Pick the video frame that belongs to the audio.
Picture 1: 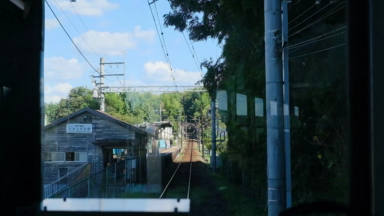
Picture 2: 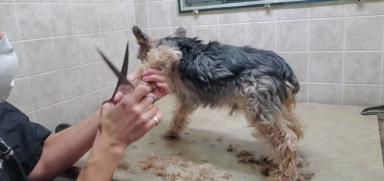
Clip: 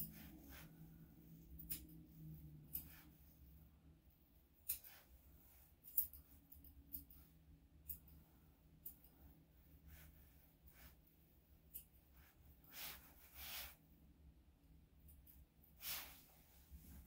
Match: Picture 2